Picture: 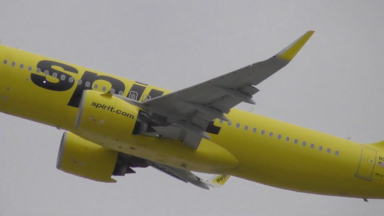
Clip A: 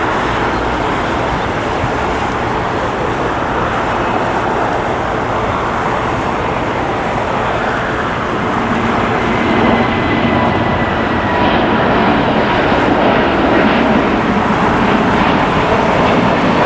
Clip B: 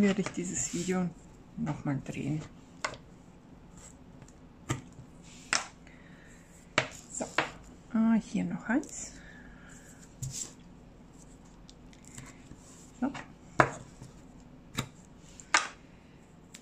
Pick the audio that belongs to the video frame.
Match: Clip A